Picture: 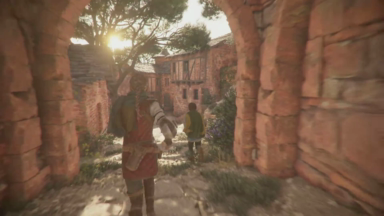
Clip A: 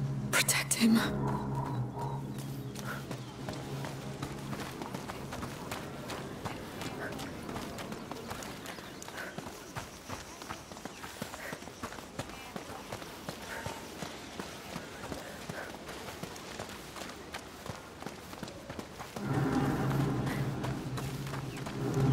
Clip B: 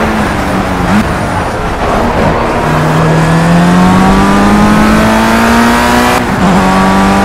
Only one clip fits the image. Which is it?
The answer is A